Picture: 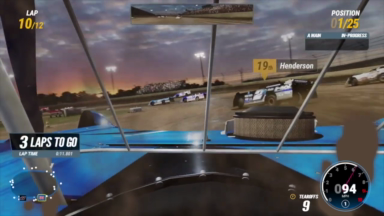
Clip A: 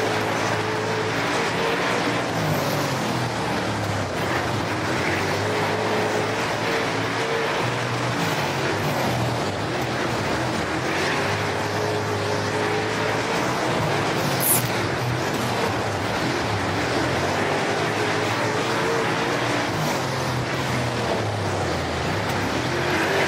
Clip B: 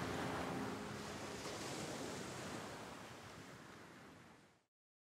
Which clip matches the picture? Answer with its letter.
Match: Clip A